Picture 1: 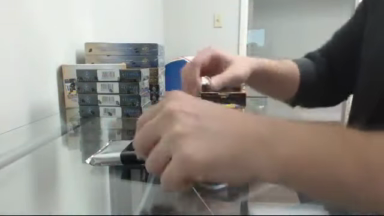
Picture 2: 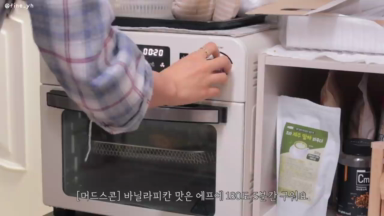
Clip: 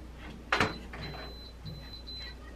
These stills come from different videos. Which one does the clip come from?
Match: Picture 2